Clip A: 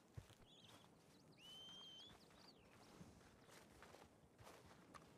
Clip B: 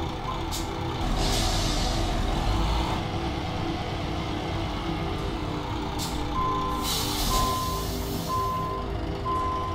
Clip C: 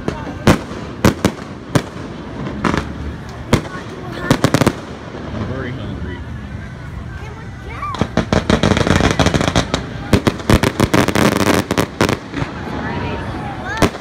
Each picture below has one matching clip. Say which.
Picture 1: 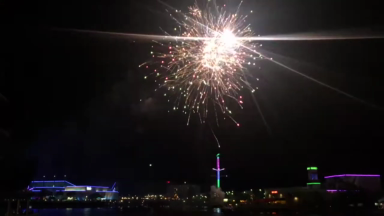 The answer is C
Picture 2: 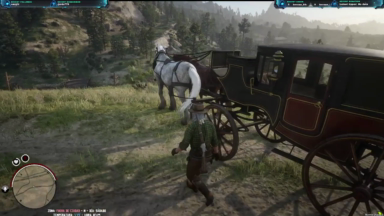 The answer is A